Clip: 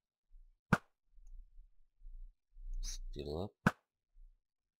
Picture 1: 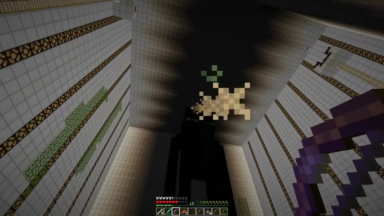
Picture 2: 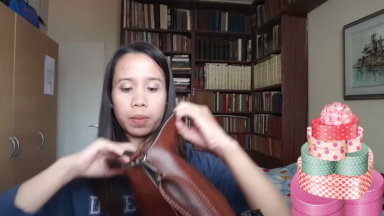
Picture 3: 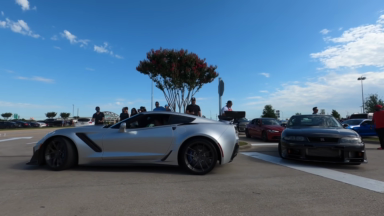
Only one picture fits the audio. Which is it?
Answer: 1